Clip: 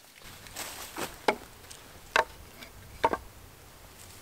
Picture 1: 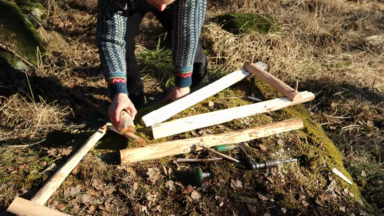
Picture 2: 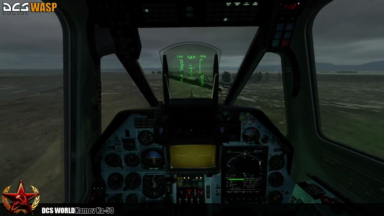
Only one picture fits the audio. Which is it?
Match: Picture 1